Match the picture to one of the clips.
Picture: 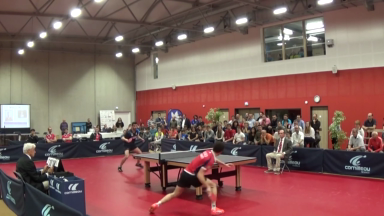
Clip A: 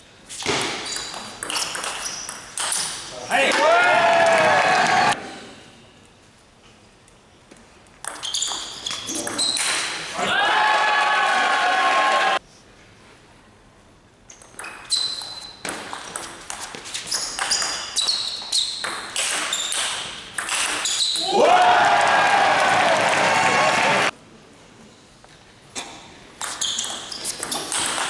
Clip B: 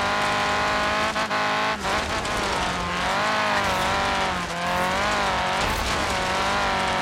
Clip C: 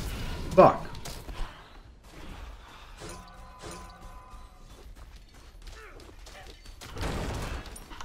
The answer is A